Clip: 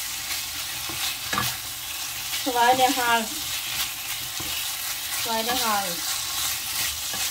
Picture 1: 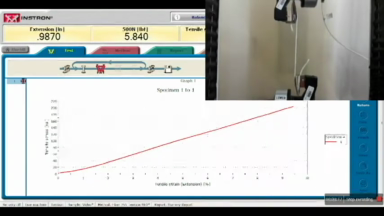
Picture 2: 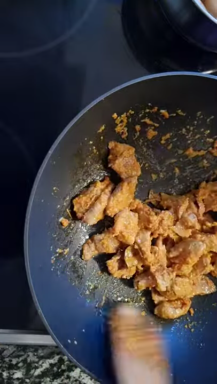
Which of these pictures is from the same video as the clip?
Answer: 2